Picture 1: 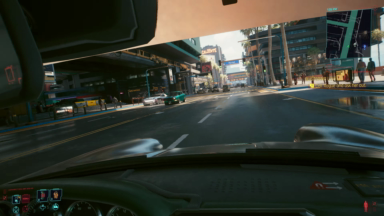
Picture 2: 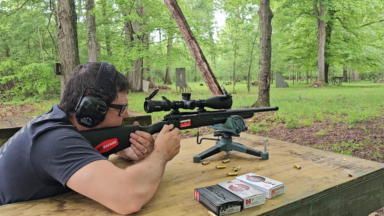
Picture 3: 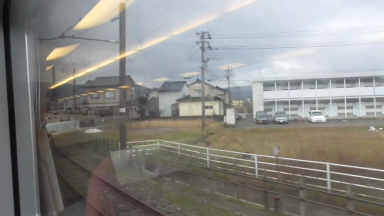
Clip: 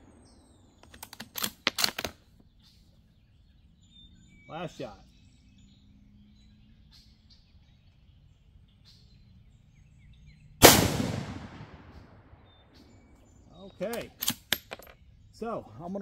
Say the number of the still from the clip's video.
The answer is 2